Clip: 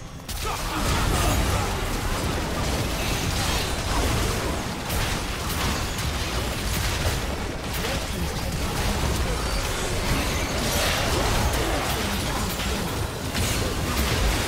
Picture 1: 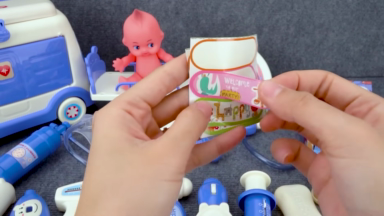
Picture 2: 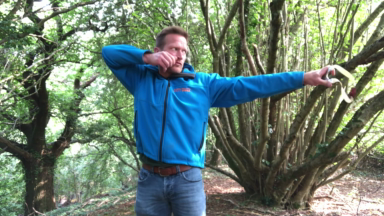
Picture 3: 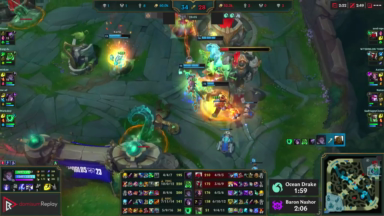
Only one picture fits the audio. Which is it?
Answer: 3